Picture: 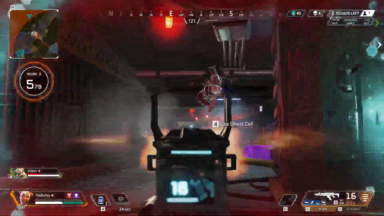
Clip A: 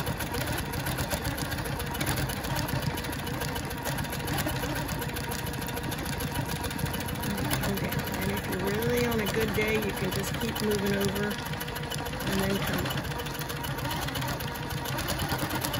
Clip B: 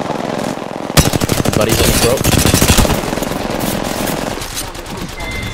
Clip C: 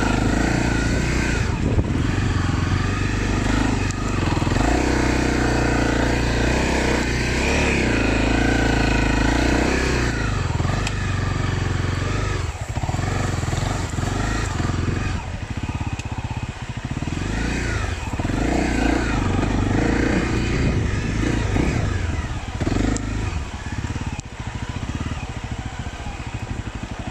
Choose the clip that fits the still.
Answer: B